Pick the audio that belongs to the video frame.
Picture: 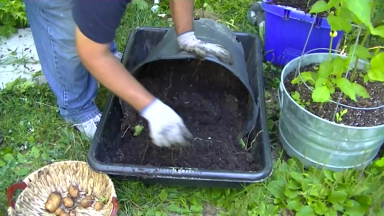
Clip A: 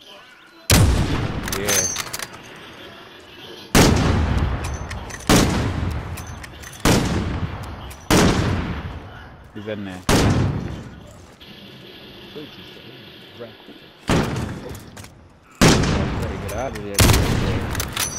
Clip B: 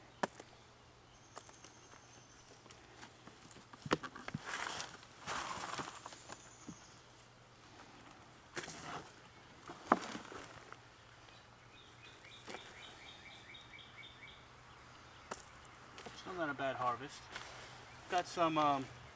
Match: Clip B